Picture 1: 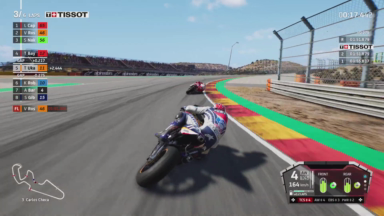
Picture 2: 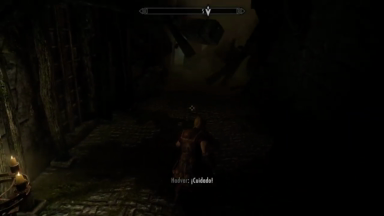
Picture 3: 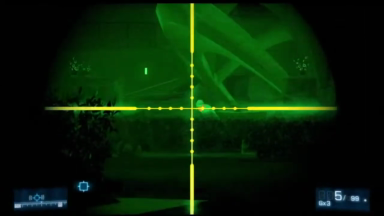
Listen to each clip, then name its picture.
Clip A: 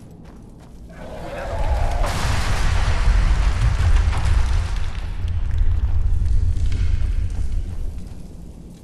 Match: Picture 2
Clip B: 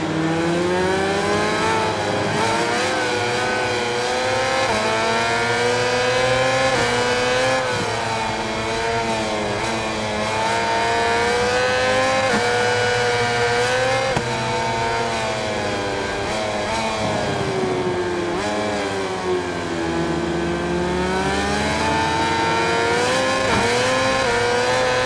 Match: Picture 1